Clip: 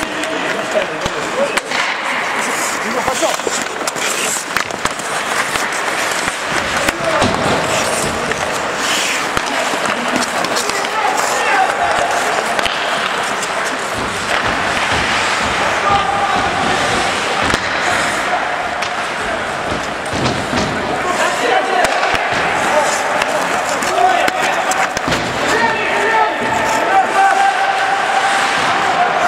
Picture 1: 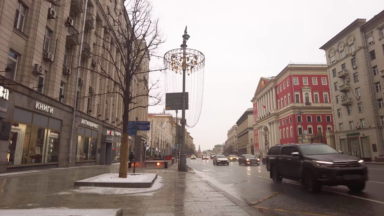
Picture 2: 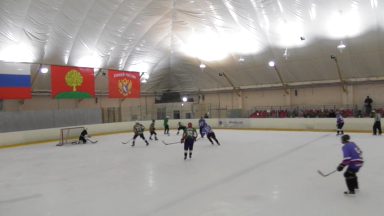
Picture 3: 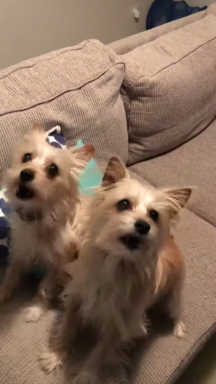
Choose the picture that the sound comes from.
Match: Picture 2